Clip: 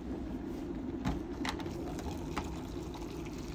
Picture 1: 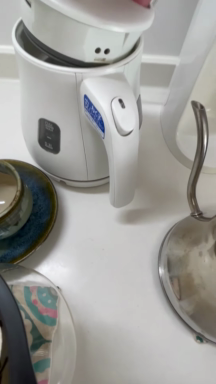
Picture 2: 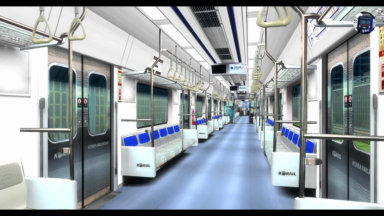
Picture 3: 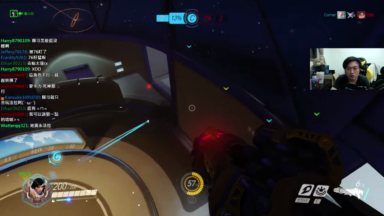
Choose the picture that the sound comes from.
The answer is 1